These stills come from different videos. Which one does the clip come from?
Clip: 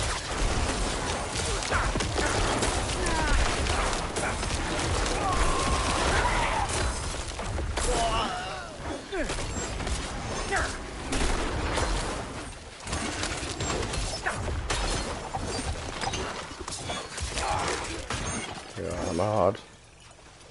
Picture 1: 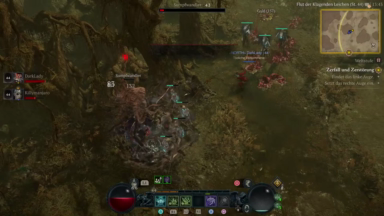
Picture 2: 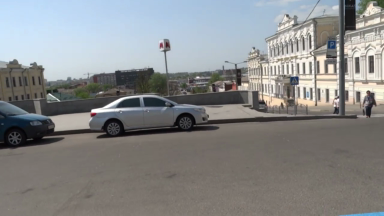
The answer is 1